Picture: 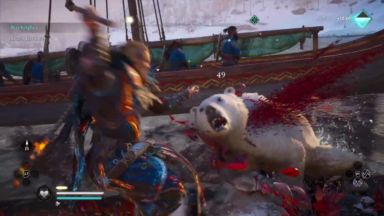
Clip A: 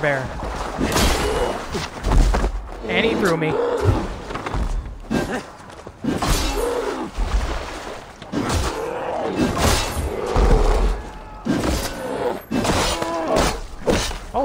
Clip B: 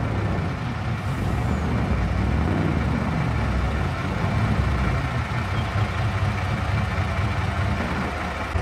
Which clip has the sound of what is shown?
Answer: A